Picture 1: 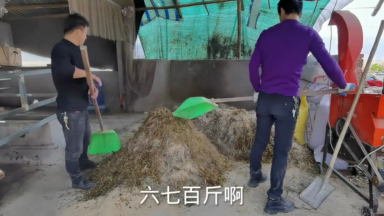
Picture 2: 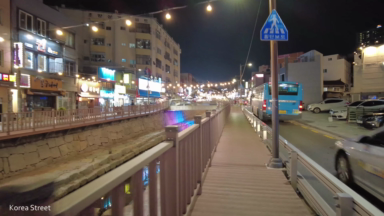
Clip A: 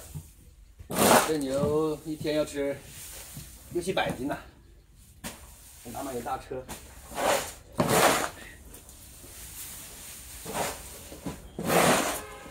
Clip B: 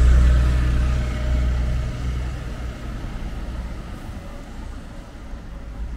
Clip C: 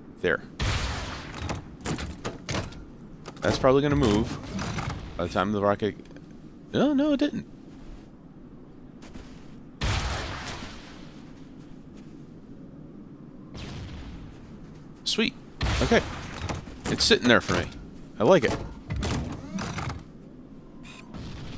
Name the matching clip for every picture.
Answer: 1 A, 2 B